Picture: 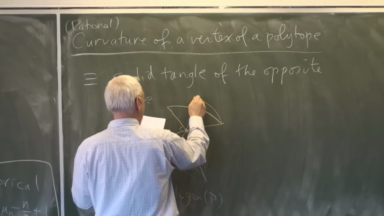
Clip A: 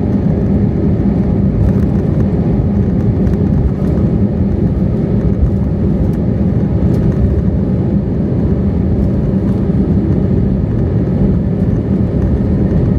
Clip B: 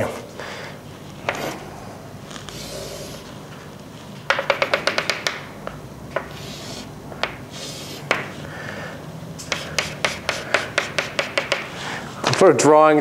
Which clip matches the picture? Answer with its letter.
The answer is B